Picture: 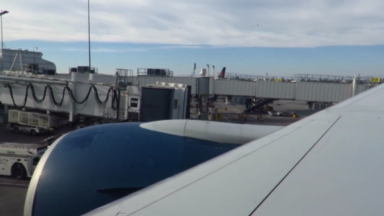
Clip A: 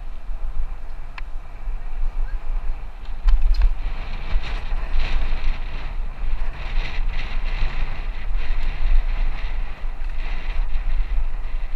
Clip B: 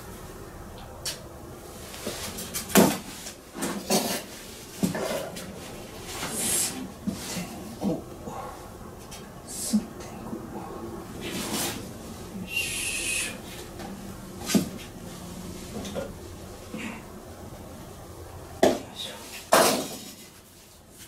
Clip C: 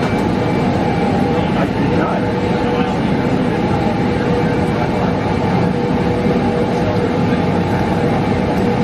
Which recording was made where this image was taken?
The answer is C